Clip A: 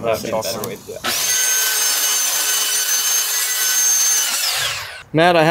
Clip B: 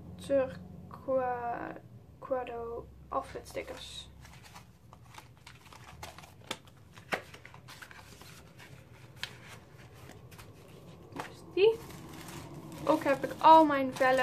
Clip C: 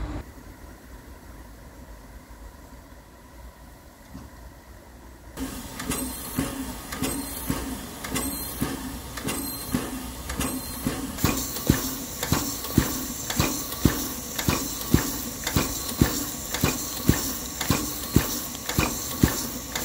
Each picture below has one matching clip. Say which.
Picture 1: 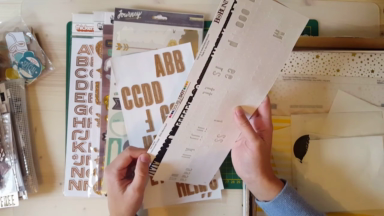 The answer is B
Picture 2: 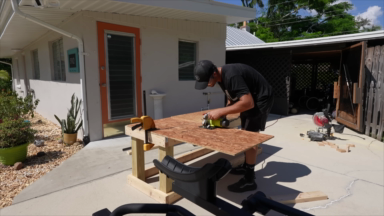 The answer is A